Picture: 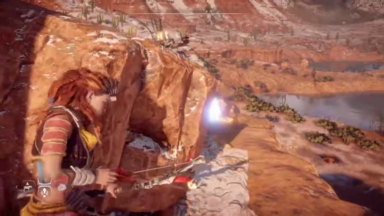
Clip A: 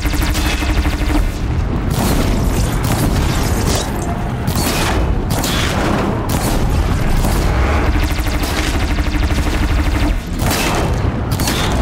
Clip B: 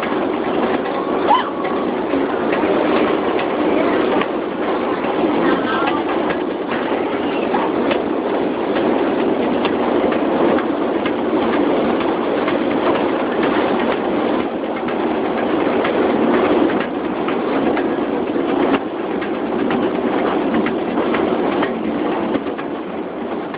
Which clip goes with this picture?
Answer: A